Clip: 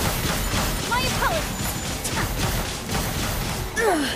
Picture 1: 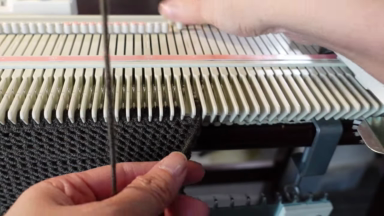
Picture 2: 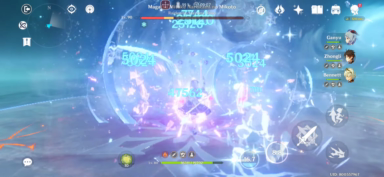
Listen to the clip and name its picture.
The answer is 2